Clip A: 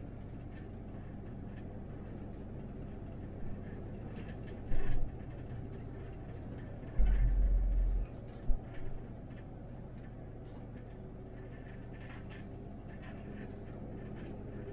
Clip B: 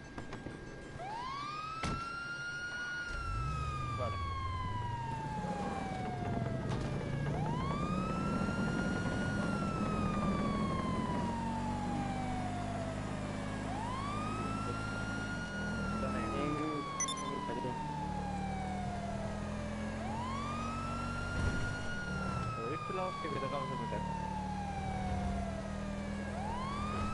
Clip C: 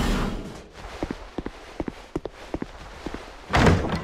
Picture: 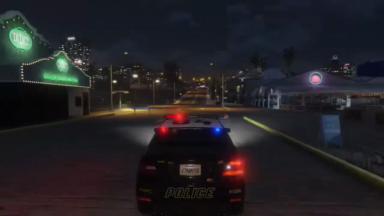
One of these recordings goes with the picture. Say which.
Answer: B